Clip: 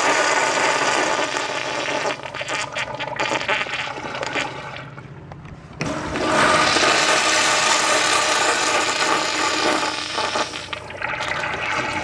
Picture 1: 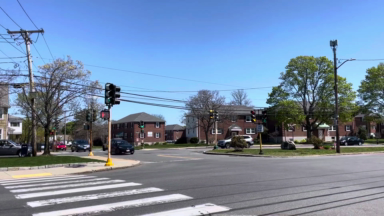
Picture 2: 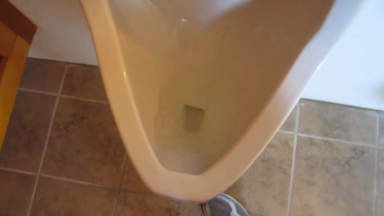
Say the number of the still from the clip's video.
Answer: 2